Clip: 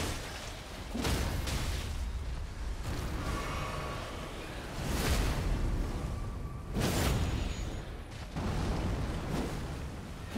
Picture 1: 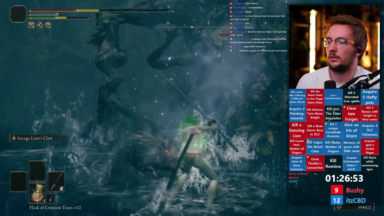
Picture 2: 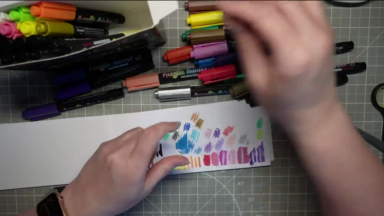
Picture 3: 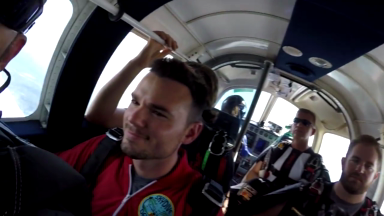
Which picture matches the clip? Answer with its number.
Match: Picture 1